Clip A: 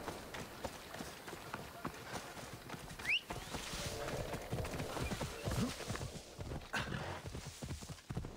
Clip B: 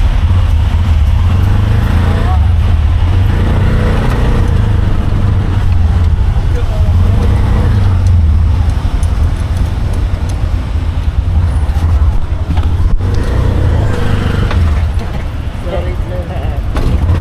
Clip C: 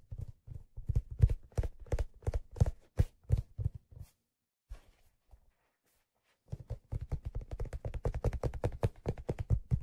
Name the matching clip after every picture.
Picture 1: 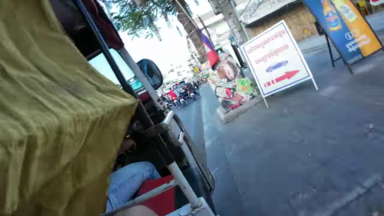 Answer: B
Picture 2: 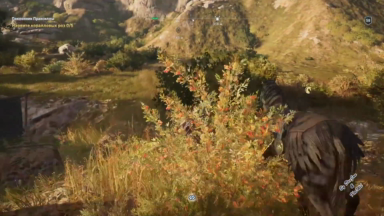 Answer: A